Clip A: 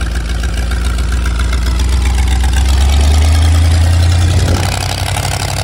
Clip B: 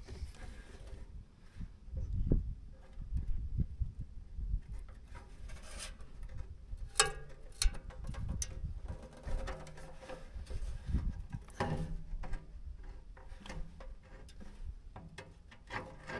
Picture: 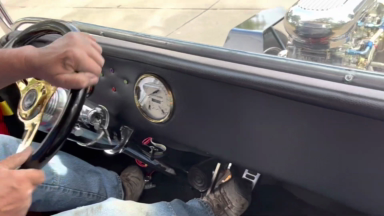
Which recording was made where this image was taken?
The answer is A